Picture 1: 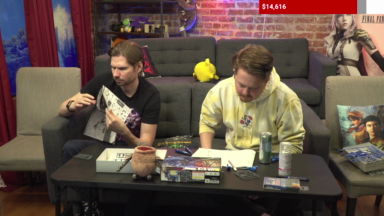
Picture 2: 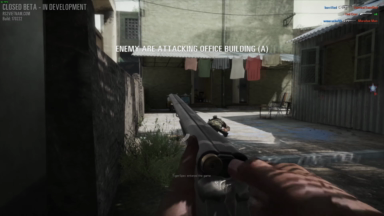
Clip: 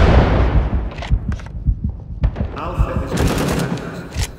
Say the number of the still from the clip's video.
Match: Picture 2